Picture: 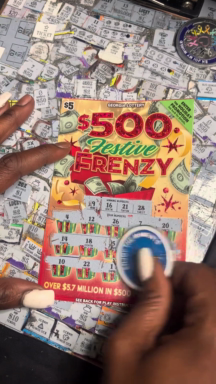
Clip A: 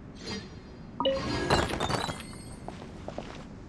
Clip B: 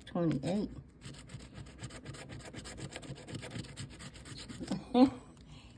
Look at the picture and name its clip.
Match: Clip B